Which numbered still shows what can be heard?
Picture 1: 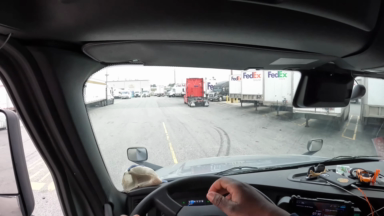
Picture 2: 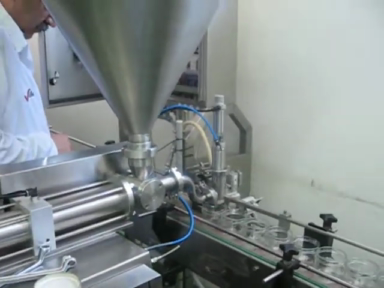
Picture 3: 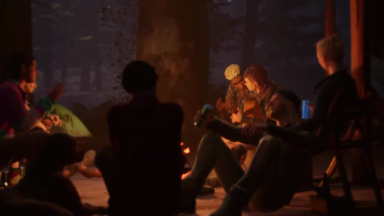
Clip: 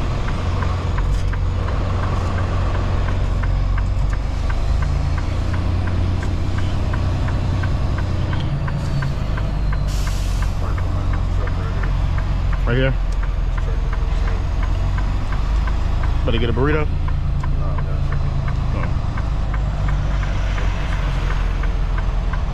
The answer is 1